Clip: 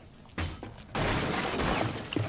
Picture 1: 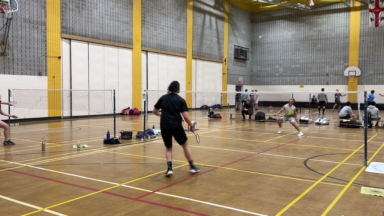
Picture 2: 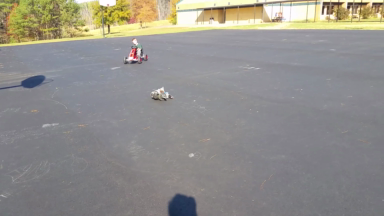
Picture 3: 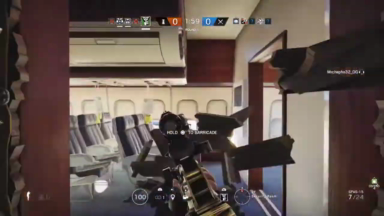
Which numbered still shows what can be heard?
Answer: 3